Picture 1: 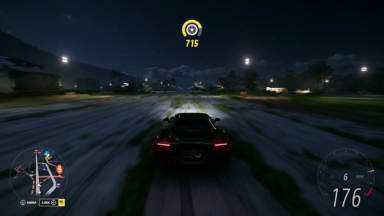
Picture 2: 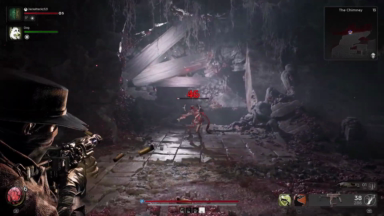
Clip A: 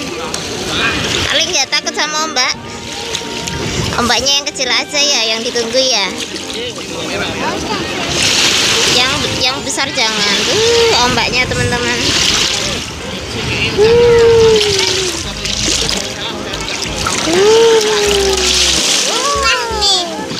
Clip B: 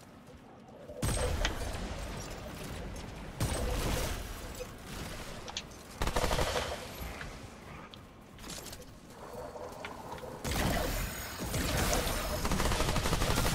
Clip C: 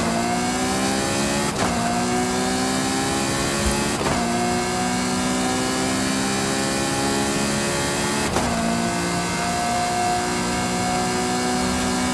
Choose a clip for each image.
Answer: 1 C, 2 B